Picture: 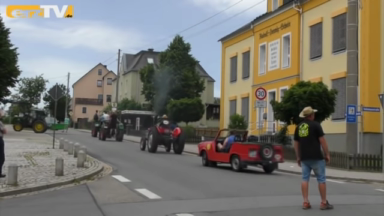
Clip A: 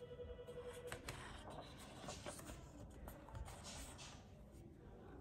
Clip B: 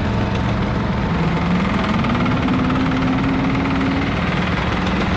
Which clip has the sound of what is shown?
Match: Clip B